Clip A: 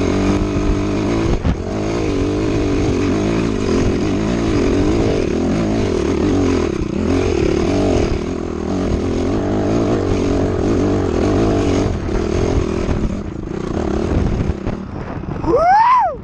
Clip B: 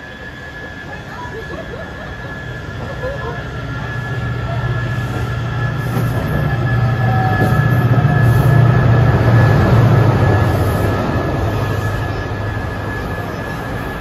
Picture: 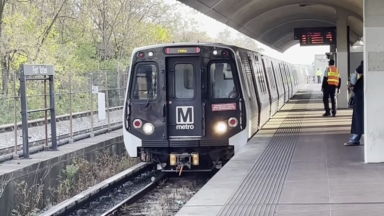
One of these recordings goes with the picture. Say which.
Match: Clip B